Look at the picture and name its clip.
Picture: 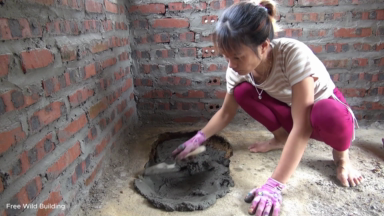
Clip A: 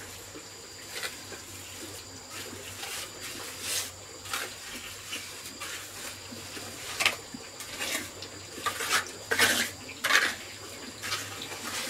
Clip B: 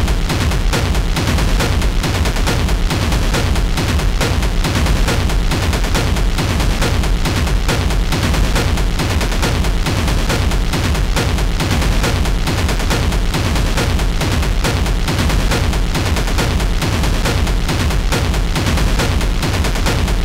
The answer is A